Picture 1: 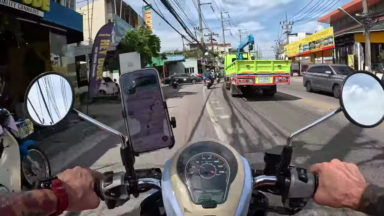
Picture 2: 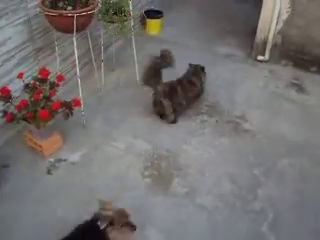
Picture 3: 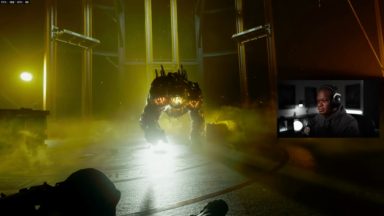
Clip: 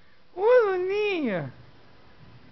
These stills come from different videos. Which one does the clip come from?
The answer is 2